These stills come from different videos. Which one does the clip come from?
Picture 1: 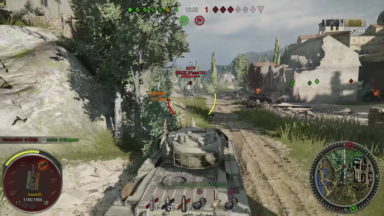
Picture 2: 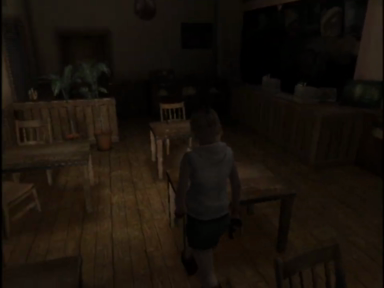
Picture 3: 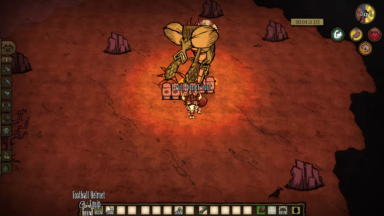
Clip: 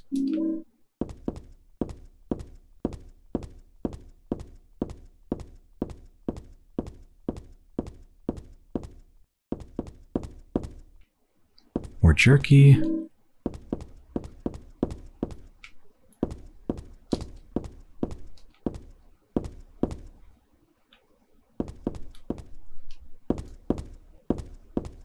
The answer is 2